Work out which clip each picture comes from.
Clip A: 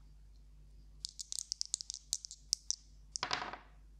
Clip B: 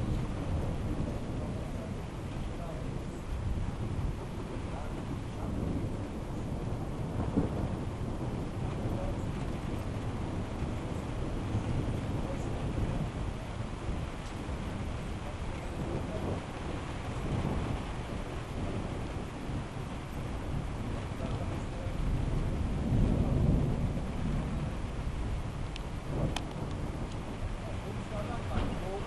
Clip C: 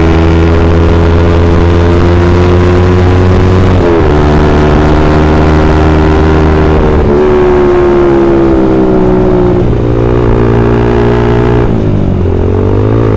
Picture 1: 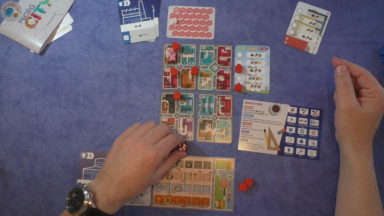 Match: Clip A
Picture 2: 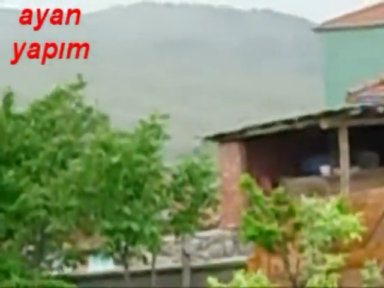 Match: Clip B